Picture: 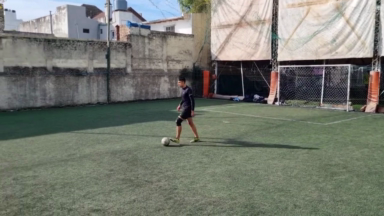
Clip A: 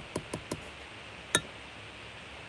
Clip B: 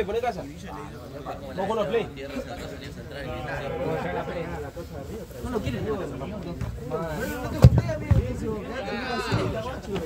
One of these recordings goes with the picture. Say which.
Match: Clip B